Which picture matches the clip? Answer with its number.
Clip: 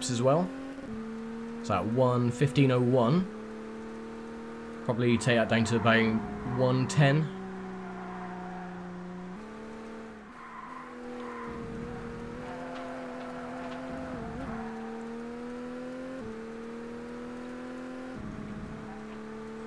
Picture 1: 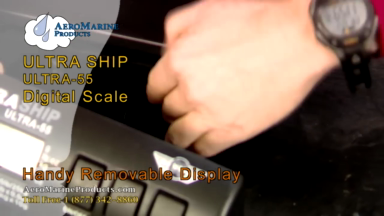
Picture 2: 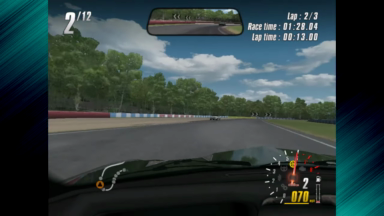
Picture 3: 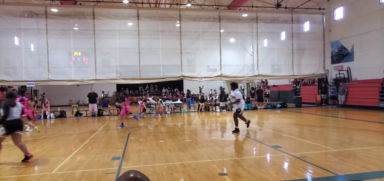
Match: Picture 2